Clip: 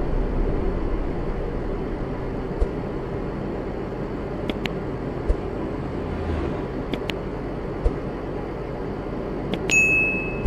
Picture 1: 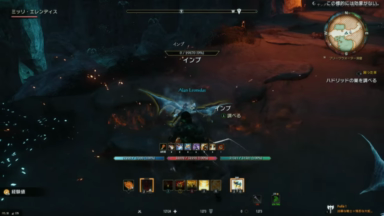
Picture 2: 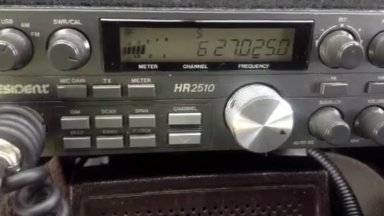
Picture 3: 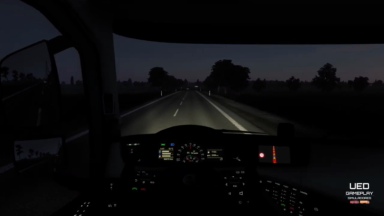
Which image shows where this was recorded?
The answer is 3